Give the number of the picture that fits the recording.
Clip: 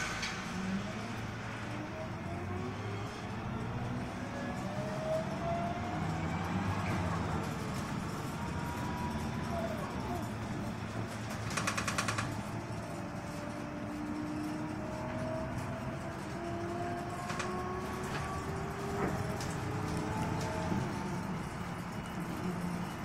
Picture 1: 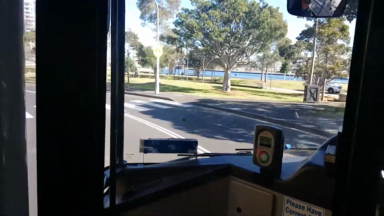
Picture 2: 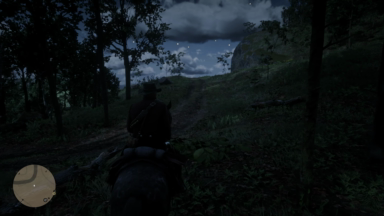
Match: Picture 1